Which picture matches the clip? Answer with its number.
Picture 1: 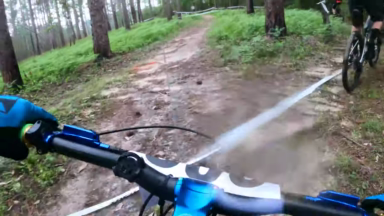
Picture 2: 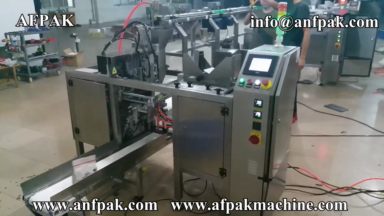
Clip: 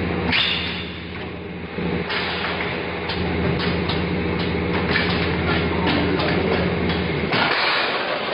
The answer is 2